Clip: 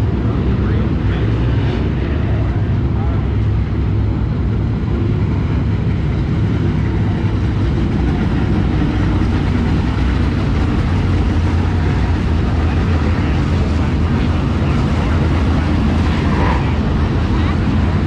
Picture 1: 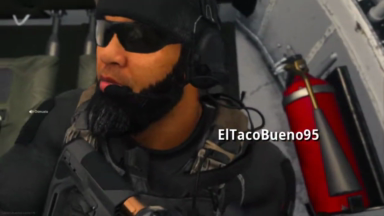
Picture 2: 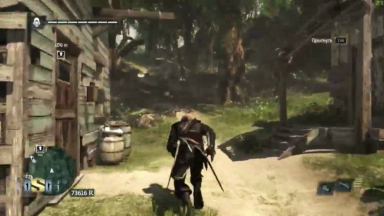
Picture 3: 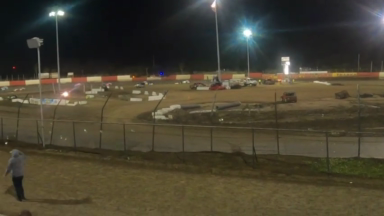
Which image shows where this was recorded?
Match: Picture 3